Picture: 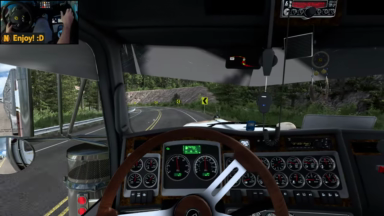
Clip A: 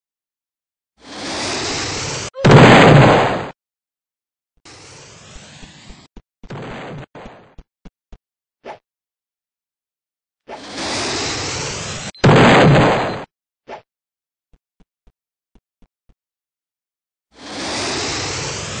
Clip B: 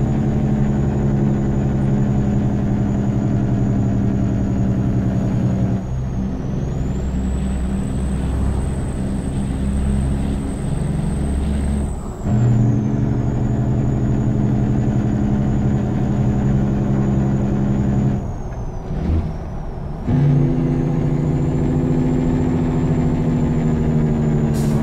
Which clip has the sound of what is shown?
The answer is B